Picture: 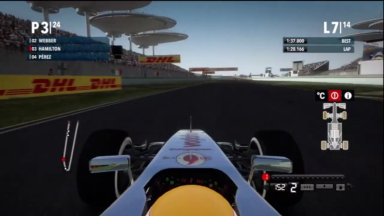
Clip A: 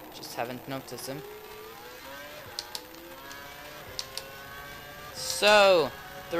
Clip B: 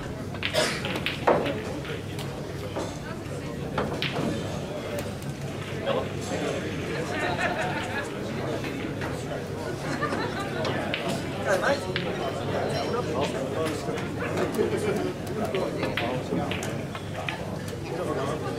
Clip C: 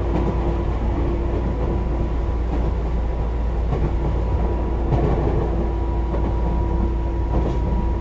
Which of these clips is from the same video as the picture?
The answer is A